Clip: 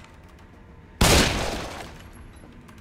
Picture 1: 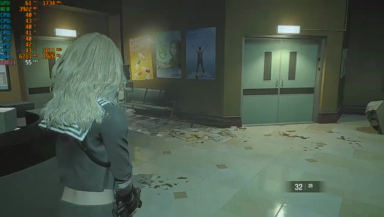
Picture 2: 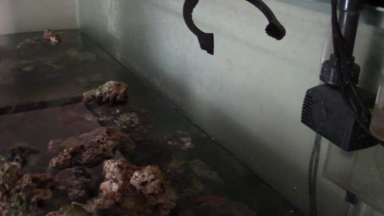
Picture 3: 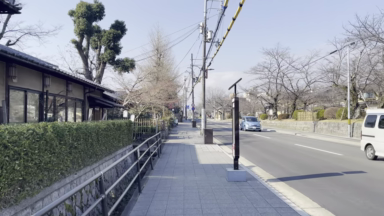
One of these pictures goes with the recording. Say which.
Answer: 1